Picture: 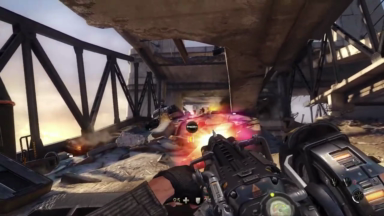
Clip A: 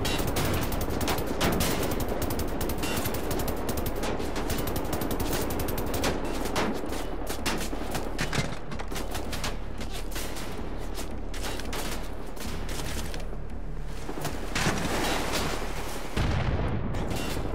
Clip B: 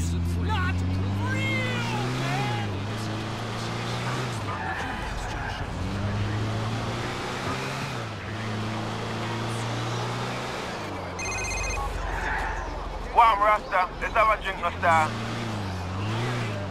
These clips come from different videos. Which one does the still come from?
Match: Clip A